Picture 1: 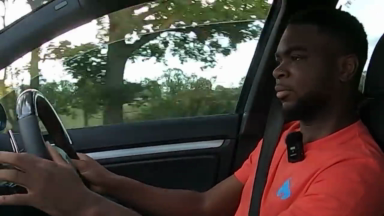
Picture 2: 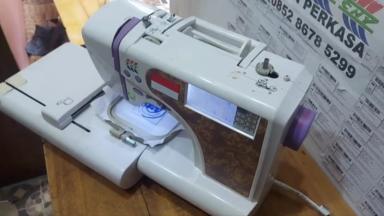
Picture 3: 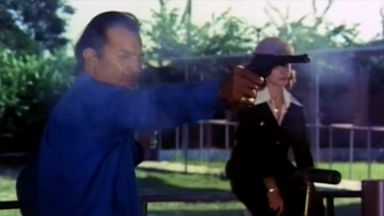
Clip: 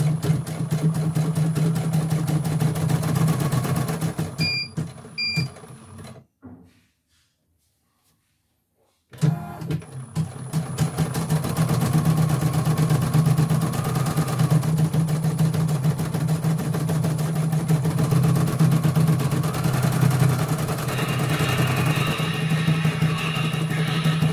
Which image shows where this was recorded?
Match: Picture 2